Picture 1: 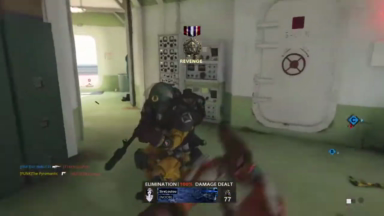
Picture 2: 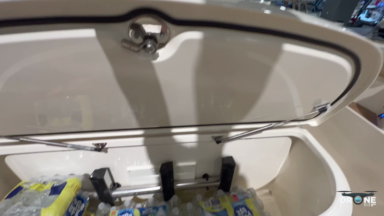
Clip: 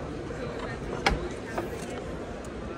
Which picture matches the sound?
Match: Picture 2